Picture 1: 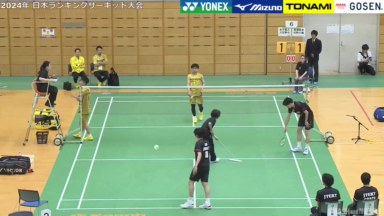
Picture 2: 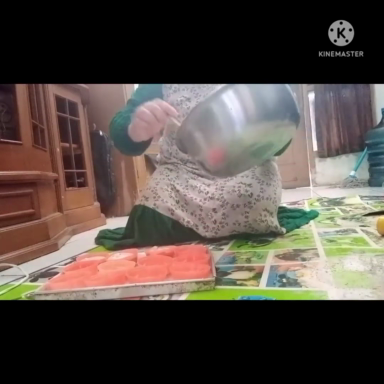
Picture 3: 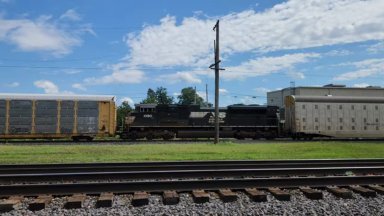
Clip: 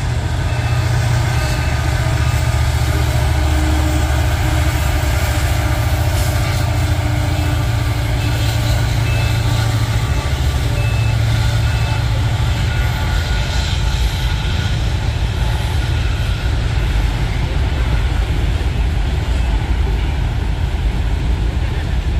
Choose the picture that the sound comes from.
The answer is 3